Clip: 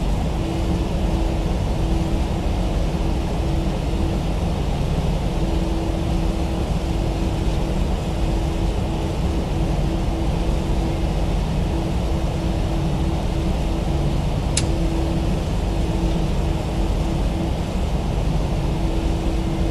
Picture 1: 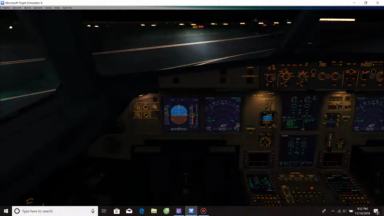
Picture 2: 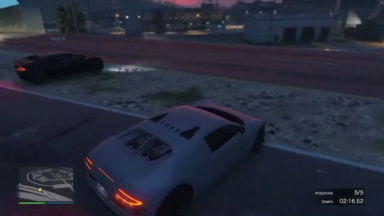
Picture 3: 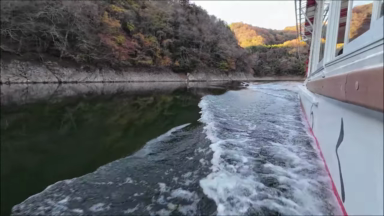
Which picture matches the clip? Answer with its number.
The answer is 1